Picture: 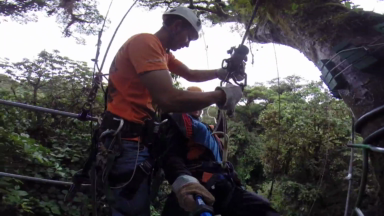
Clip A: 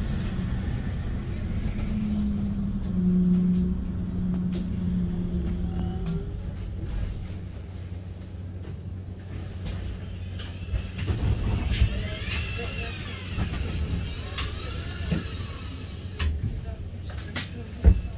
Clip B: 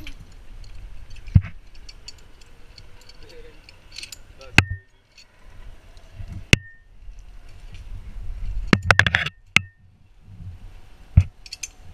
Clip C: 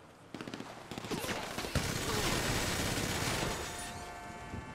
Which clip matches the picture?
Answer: B